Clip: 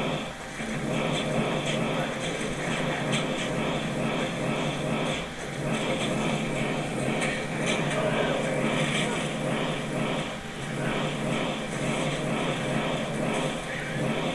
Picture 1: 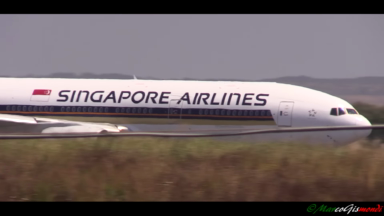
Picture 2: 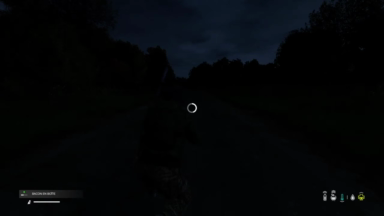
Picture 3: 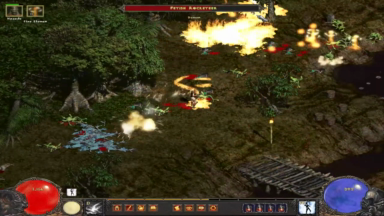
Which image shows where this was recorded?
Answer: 3